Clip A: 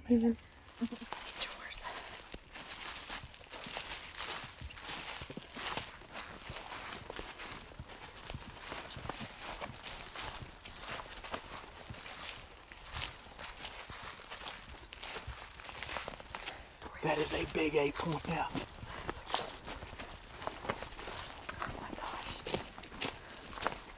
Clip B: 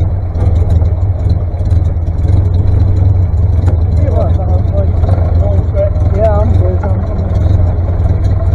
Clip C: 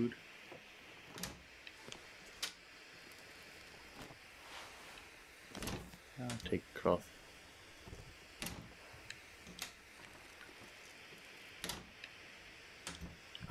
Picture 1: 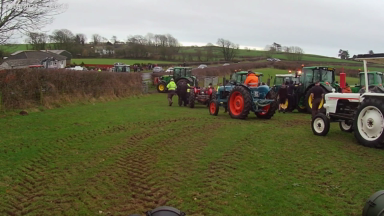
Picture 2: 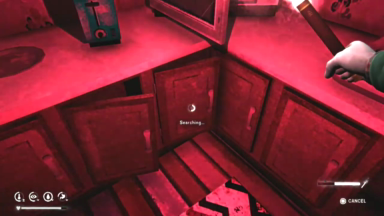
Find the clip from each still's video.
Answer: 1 B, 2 C